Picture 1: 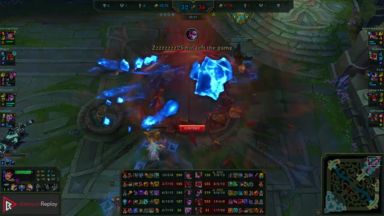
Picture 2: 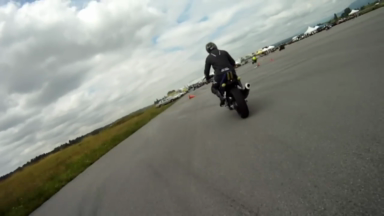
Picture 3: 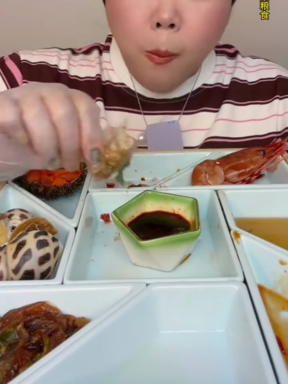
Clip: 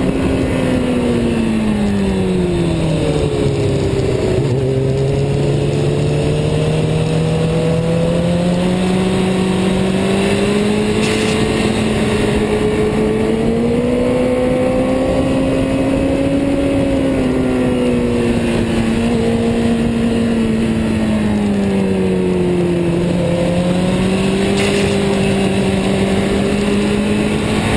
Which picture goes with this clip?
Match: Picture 2